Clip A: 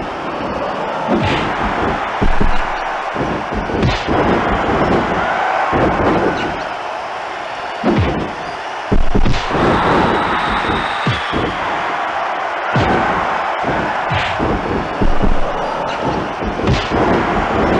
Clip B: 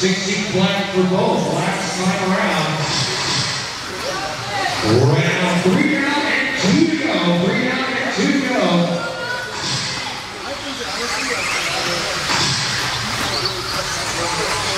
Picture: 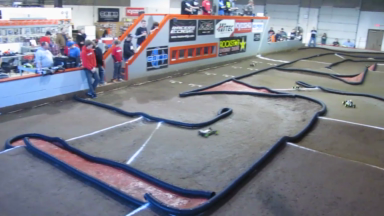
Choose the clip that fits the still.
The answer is B